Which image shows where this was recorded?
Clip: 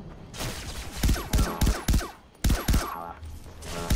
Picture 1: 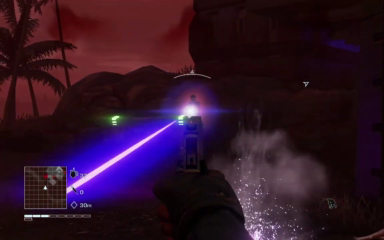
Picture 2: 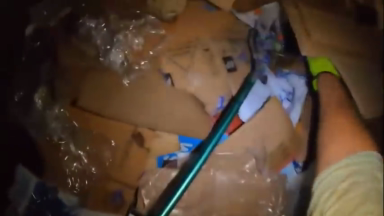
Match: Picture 1